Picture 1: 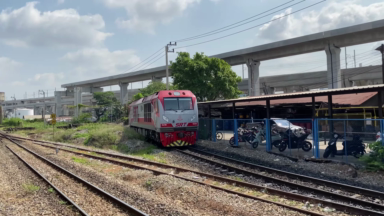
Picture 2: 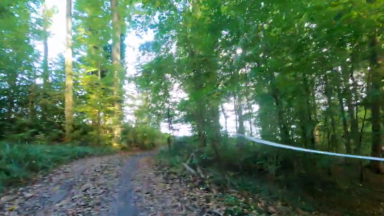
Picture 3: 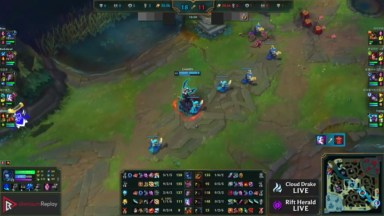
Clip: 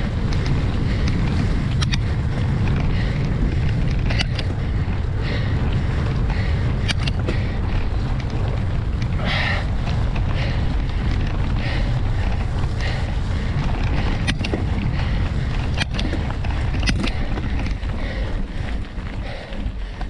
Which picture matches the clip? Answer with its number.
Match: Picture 2